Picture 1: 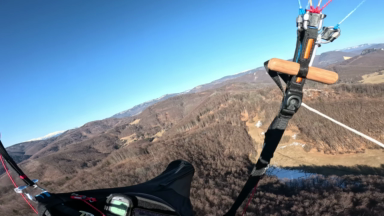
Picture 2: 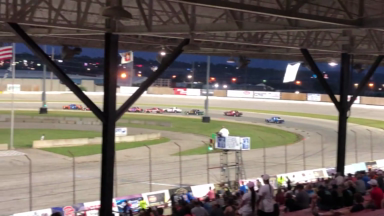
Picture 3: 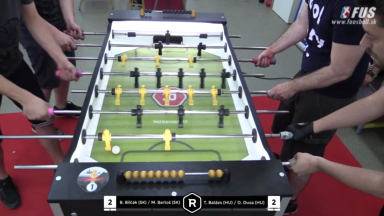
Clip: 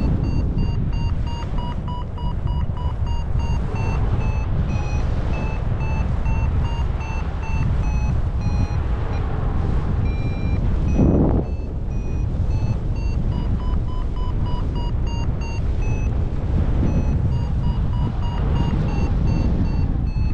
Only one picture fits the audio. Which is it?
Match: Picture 1